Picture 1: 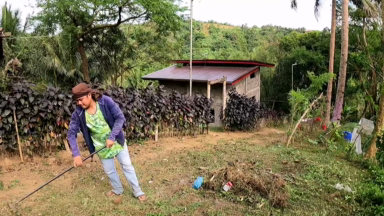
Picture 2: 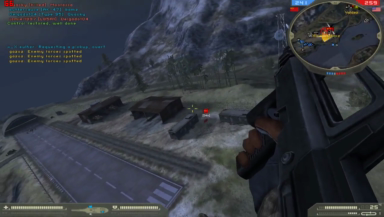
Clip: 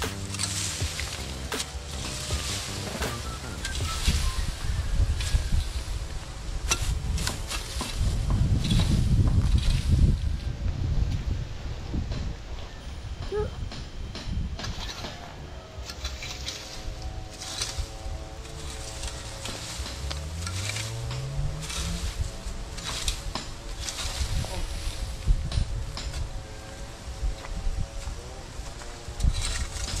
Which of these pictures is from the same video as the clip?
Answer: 1